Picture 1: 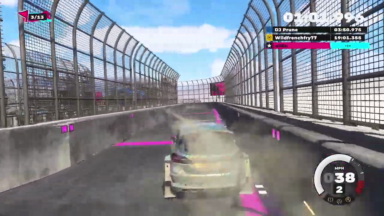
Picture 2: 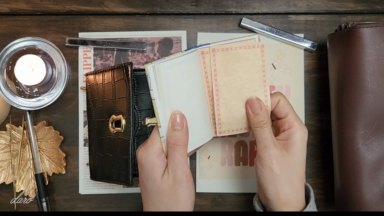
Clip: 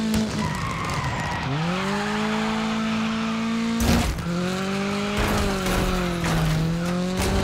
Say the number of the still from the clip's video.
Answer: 1